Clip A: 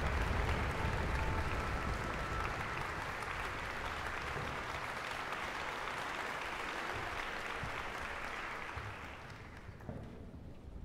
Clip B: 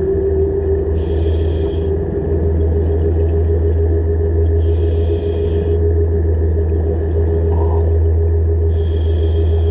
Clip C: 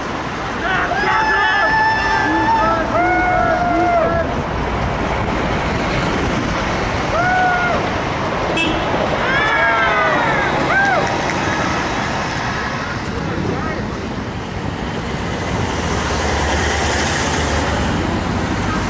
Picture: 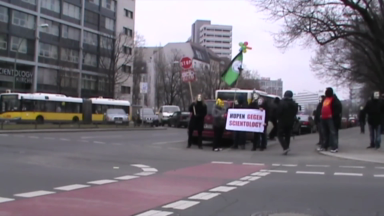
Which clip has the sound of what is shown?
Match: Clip C